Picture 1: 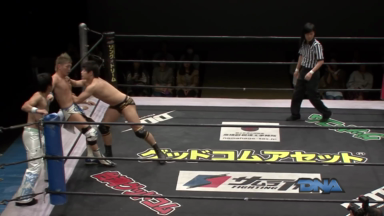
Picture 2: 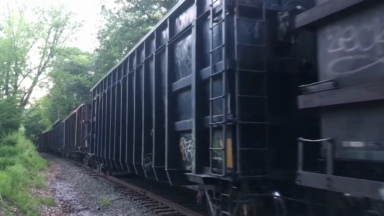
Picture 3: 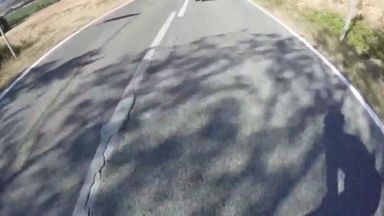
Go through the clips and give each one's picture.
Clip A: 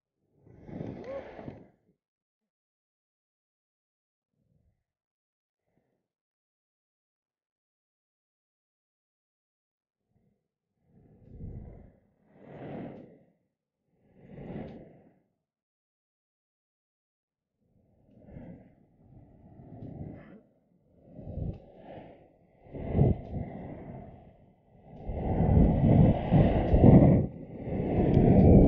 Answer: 3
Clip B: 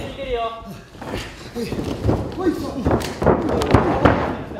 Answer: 1